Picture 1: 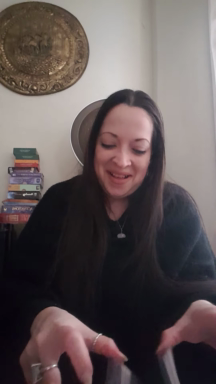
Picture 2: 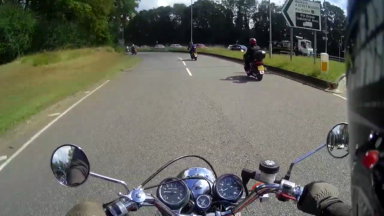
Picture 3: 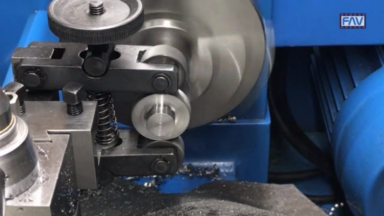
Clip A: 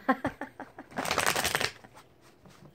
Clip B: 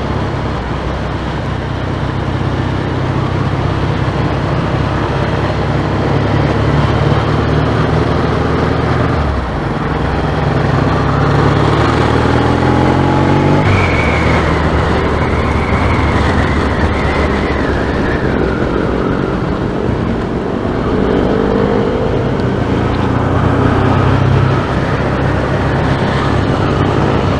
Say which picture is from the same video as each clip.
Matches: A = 1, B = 2